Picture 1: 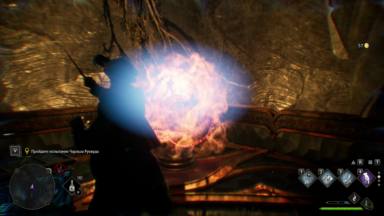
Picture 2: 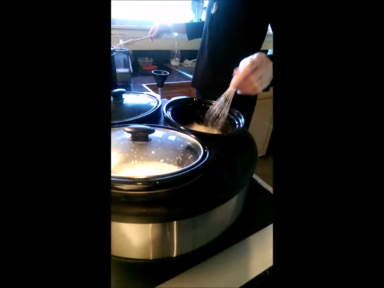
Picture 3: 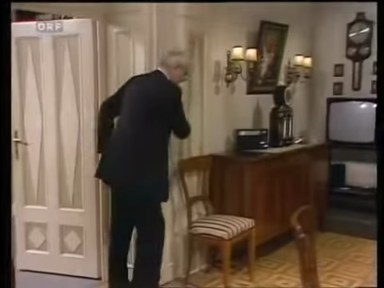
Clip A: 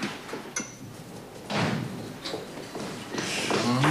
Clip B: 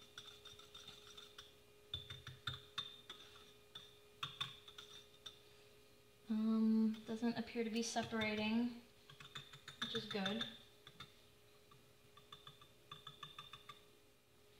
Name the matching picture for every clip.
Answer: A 3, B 2